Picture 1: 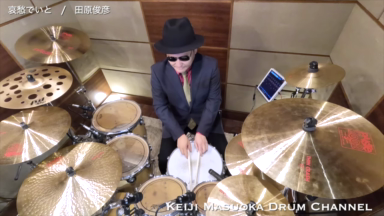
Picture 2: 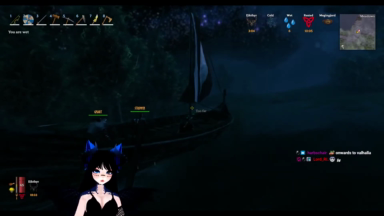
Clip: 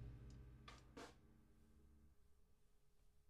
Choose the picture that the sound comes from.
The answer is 1